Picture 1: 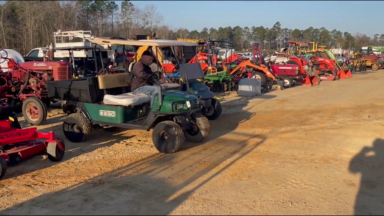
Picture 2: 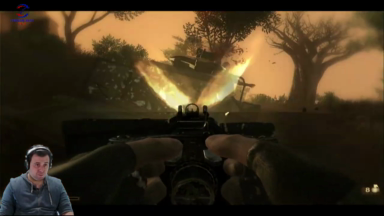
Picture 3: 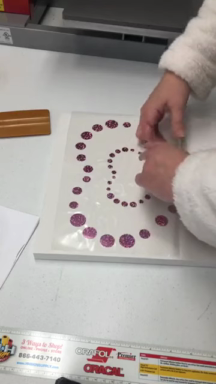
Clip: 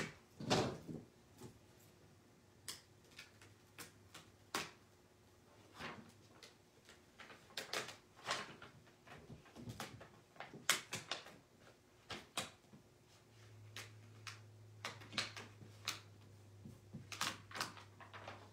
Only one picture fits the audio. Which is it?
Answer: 3